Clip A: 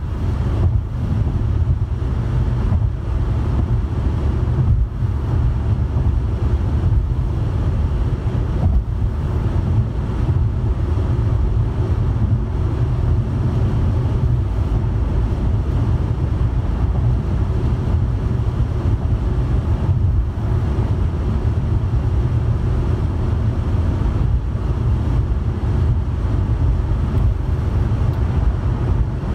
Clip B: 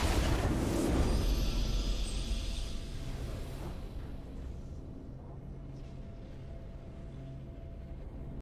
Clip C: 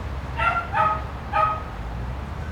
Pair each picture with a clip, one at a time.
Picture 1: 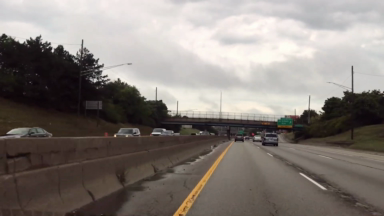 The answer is A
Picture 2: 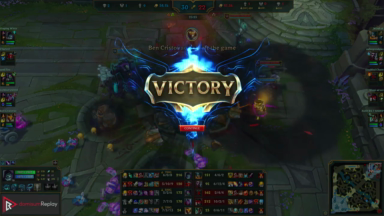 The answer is B